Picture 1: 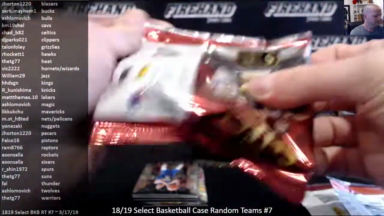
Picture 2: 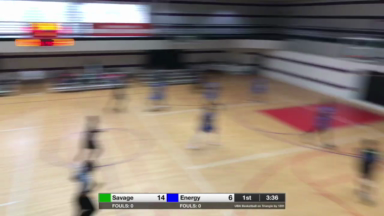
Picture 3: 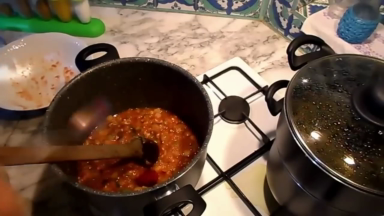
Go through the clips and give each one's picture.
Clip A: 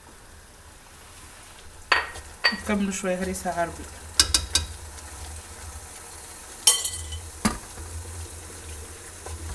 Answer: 3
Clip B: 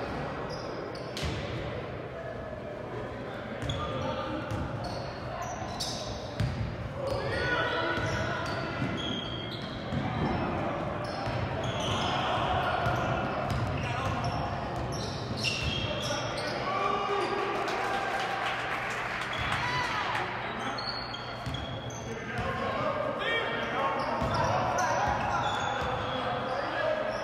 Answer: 2